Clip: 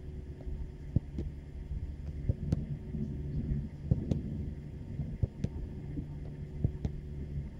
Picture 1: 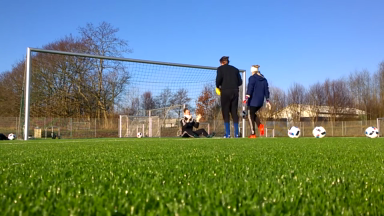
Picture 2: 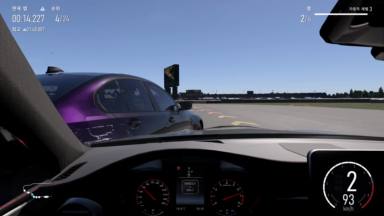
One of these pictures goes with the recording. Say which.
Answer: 1